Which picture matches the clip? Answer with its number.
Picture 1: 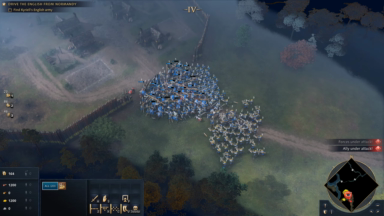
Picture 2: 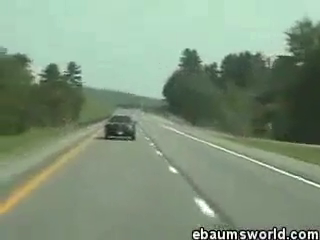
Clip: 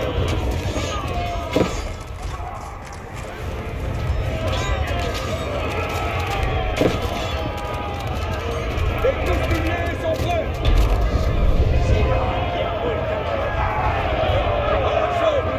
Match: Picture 1